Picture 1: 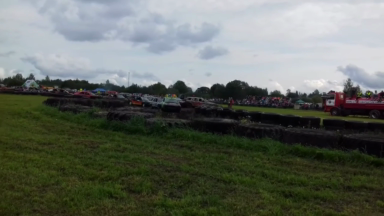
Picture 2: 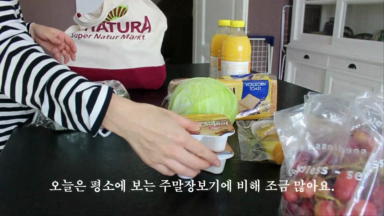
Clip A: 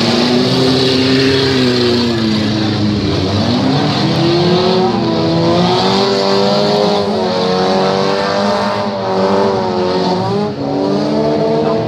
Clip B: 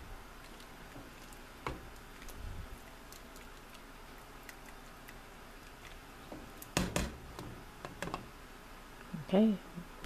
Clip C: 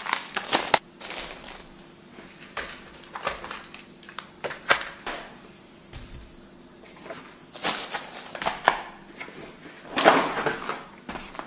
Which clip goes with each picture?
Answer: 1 A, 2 C